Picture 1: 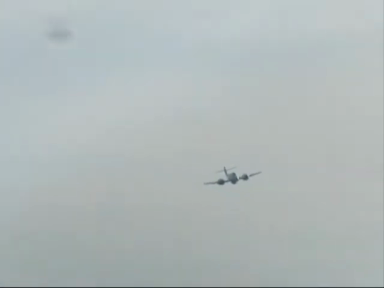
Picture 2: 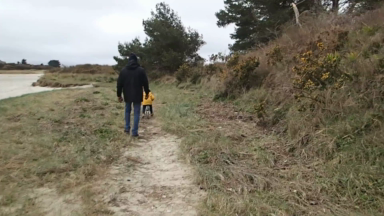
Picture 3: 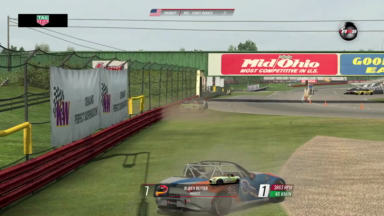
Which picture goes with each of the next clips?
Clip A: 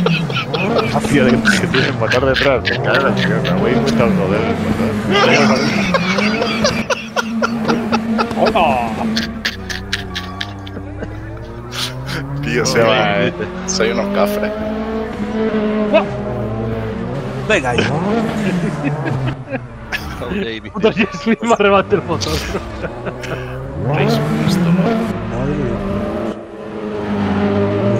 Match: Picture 3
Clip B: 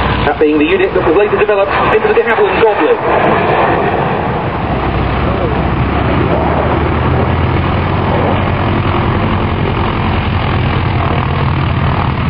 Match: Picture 1